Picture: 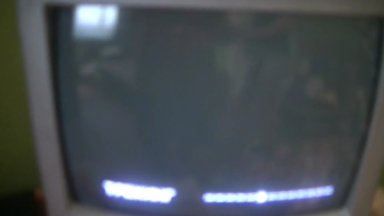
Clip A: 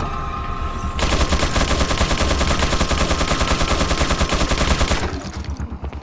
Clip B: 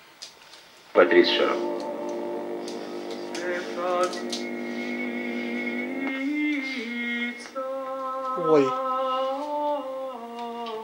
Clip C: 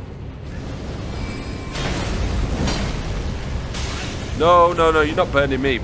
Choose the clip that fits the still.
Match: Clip B